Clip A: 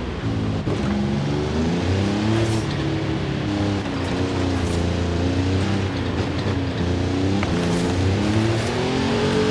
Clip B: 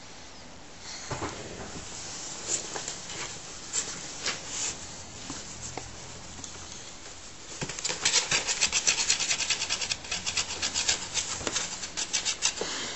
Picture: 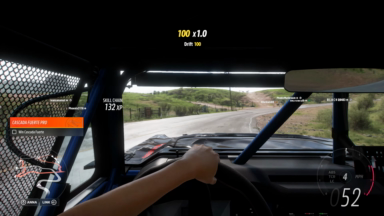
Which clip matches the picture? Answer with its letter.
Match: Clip A